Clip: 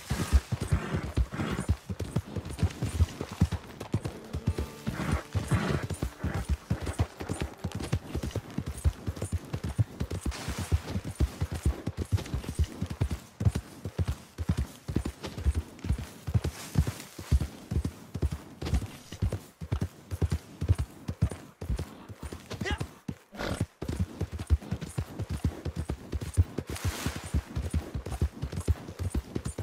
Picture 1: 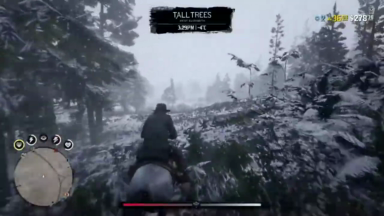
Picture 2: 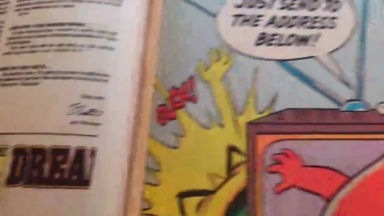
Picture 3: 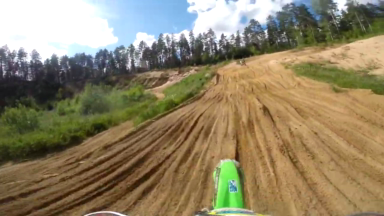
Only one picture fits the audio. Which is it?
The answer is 1